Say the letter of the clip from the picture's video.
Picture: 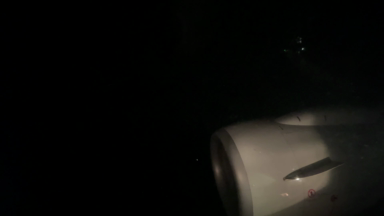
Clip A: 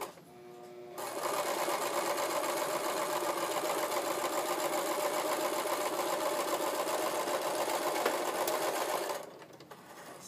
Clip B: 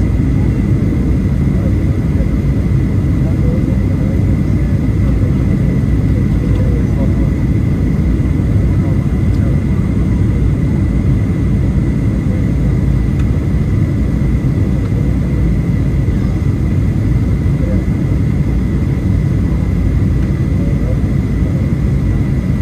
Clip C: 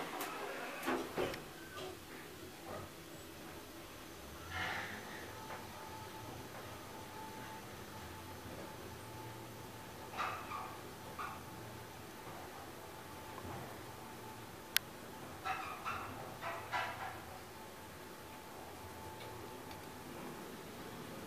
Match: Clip B